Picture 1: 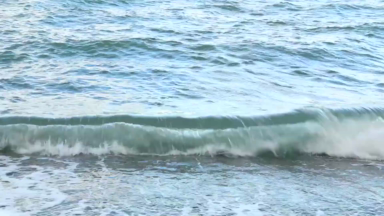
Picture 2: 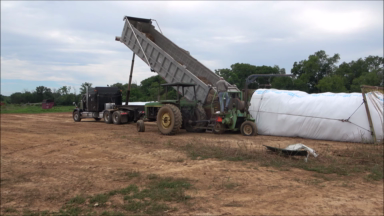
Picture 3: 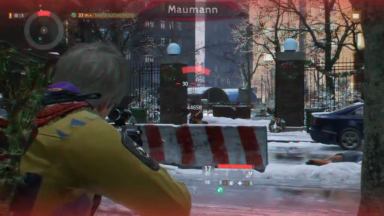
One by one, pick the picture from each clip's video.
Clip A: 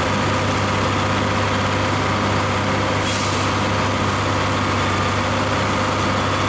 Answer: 2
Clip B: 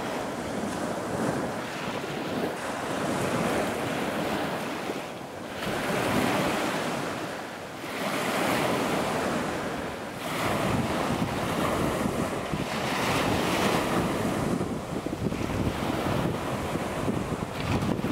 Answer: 1